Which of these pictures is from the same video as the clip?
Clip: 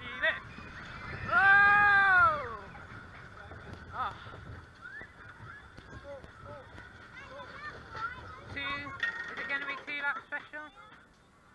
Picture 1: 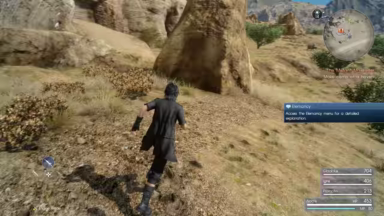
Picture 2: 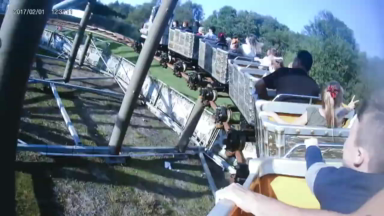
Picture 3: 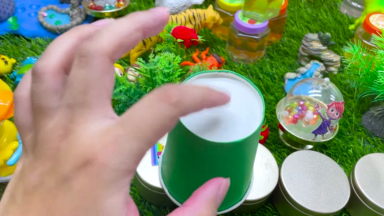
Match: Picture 2